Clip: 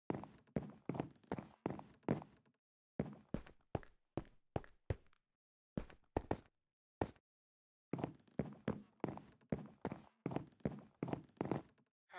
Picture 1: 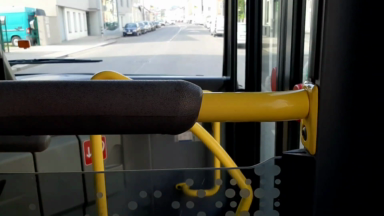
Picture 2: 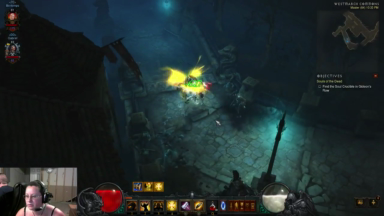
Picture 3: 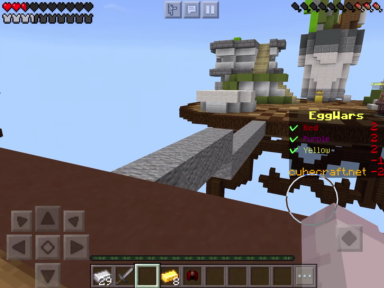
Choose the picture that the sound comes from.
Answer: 3